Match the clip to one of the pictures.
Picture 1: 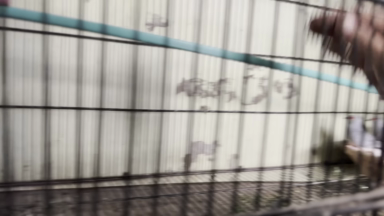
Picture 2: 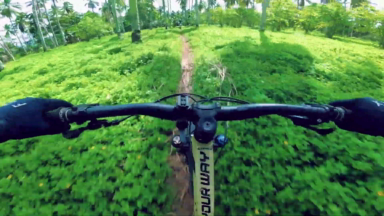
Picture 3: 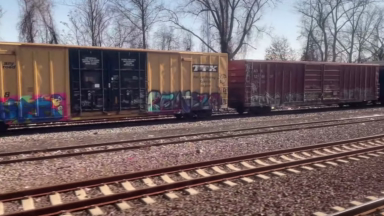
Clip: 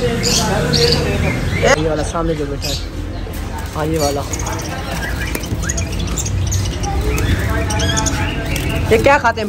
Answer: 1